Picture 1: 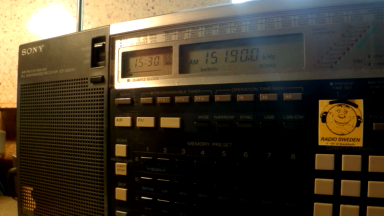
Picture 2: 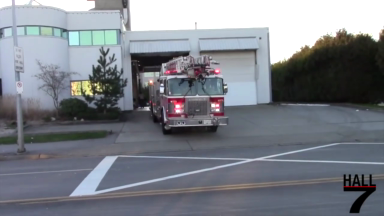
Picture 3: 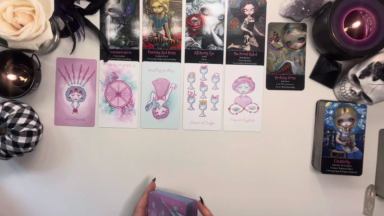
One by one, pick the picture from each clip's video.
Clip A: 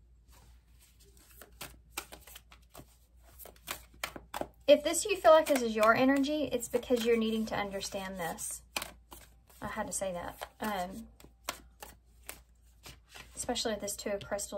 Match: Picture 3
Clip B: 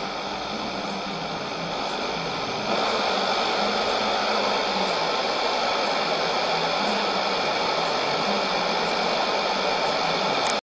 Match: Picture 1